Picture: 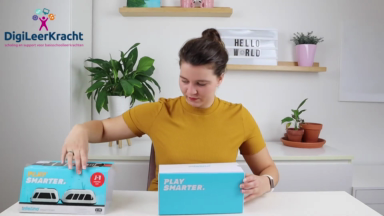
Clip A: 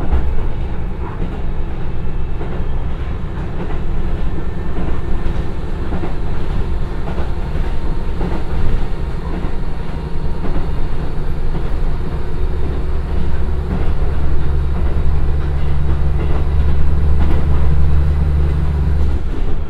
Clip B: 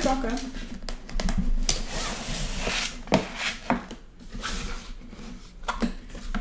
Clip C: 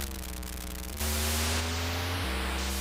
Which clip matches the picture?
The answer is B